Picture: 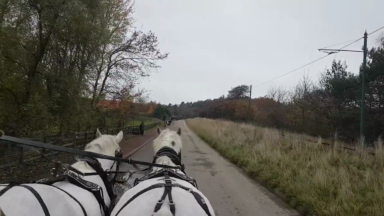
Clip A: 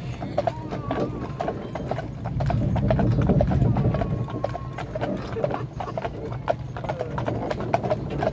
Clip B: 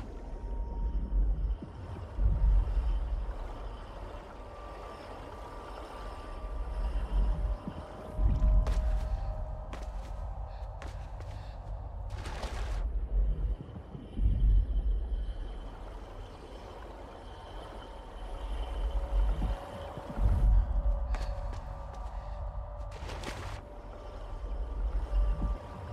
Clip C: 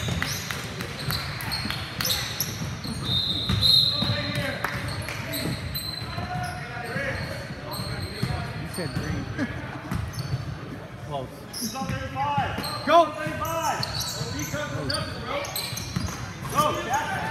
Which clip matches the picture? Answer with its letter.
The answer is A